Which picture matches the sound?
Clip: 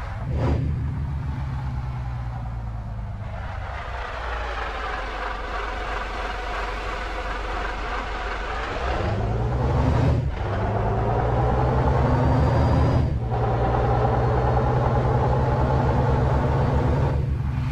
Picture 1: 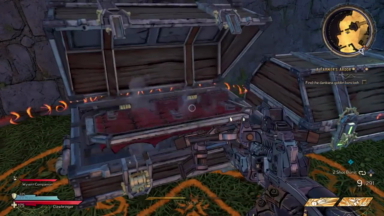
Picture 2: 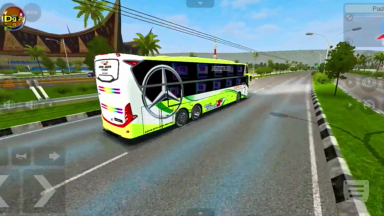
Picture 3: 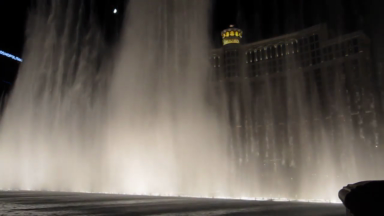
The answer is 2